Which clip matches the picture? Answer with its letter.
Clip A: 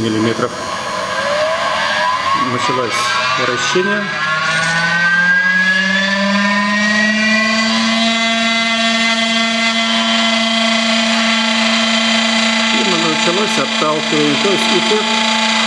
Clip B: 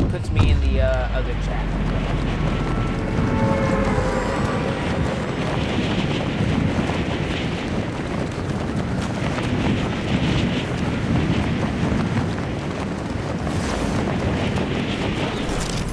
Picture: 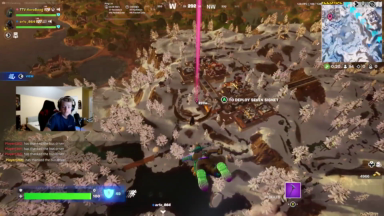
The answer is B